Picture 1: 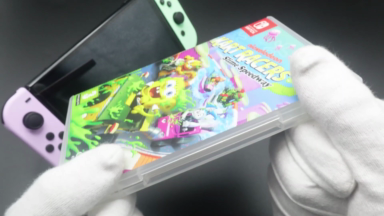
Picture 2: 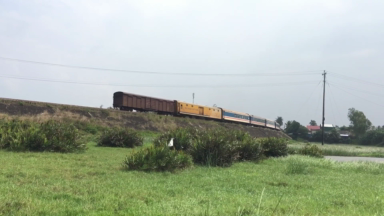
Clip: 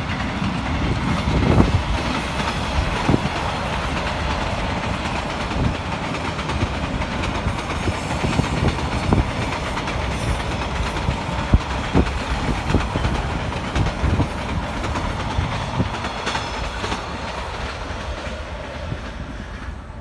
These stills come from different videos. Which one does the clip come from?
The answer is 2